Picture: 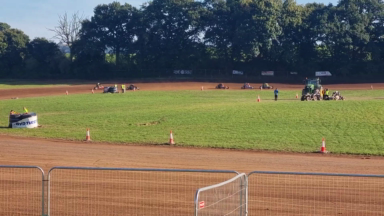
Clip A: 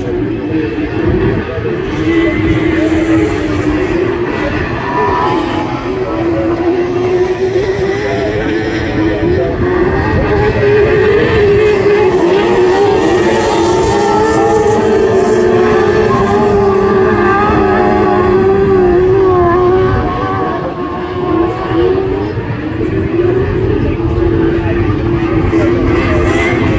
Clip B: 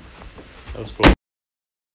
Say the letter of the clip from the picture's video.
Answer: A